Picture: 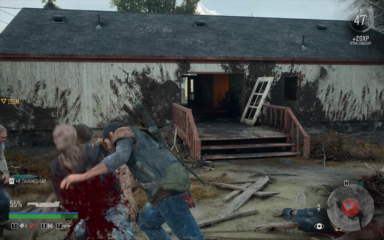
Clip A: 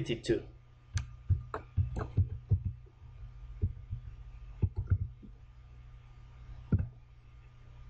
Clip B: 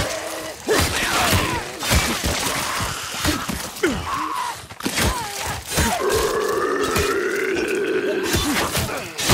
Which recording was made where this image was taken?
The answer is B